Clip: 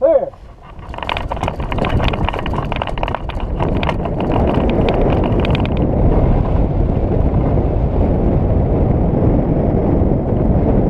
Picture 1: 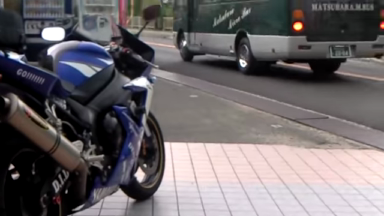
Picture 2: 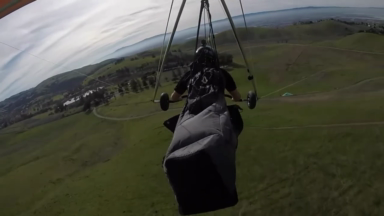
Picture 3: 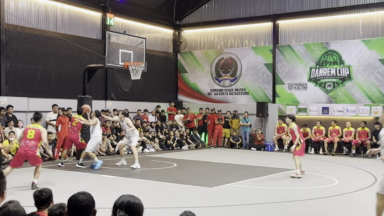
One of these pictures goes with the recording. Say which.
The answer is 2